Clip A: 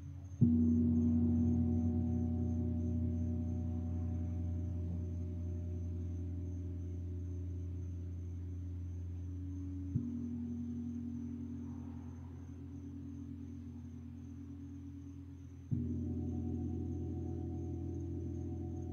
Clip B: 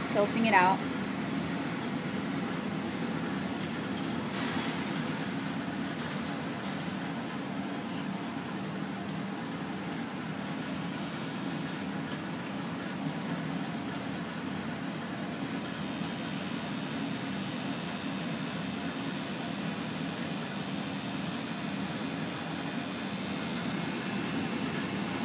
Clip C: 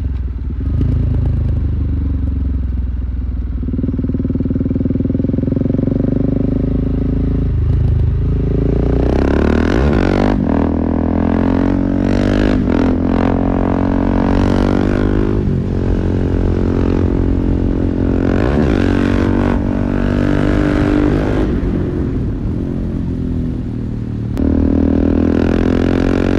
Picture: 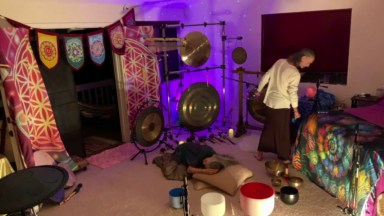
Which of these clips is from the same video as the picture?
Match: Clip A